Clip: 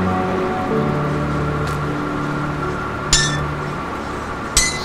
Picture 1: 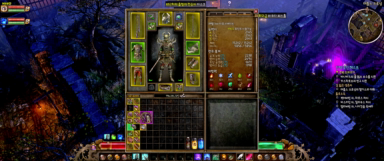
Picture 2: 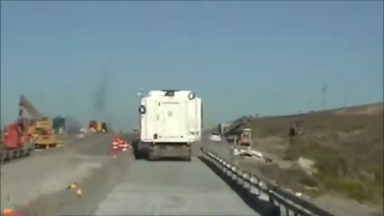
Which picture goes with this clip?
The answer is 1